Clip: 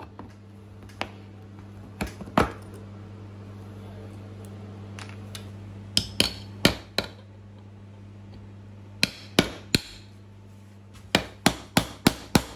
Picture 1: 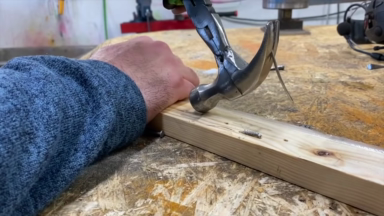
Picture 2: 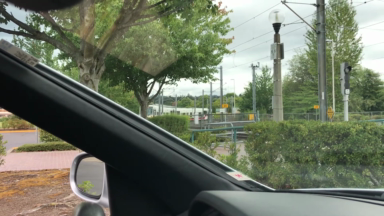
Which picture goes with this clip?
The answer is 1